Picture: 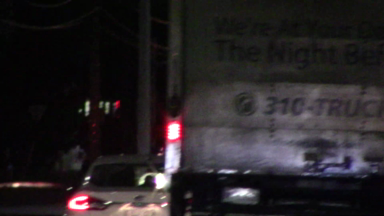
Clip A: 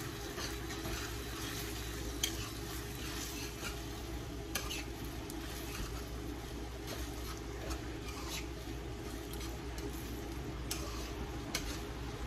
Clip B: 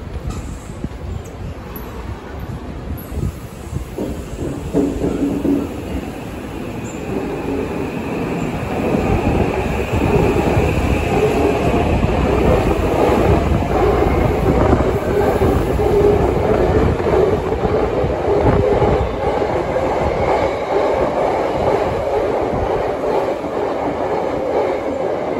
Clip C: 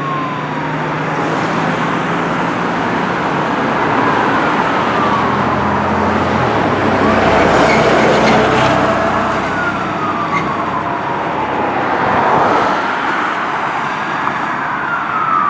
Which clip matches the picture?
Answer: C